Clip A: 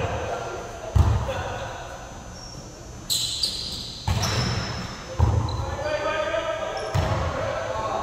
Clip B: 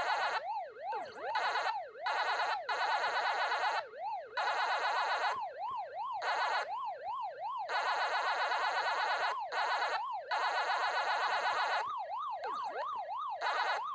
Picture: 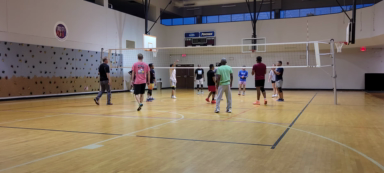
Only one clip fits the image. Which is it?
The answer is A